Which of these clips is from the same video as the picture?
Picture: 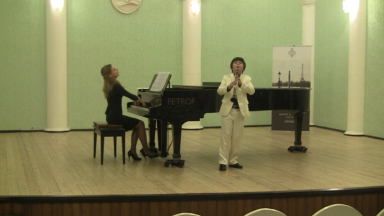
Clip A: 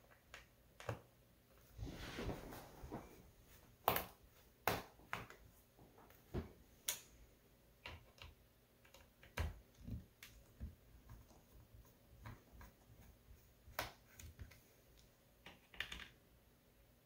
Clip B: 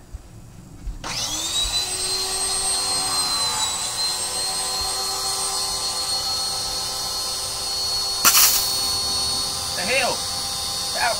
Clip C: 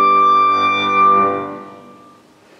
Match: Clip C